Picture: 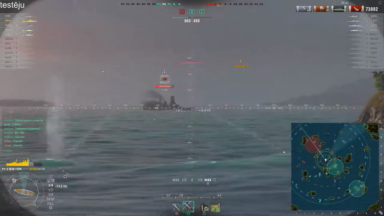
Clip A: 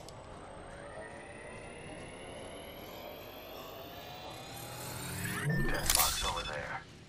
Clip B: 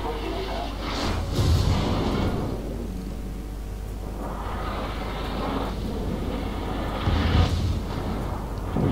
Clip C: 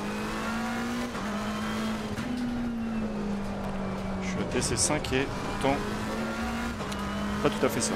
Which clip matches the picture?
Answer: B